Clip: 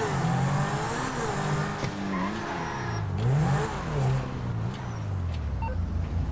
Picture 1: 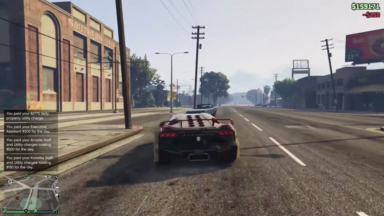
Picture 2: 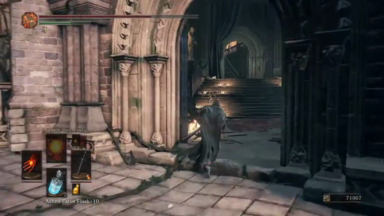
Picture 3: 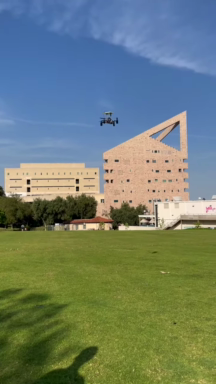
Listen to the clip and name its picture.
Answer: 1